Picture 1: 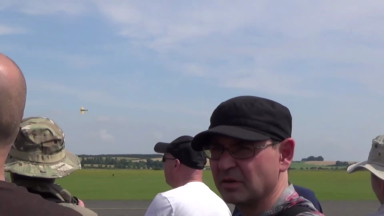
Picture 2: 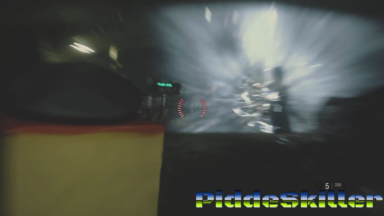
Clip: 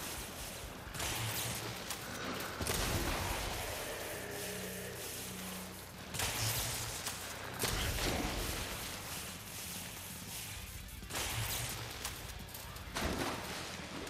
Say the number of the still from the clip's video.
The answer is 2